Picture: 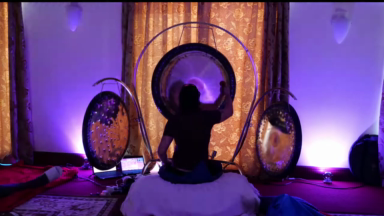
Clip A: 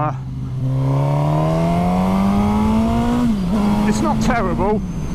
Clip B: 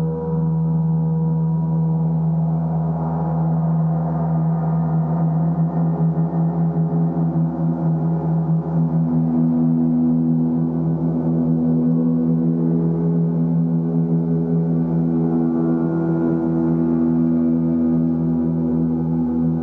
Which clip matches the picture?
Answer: B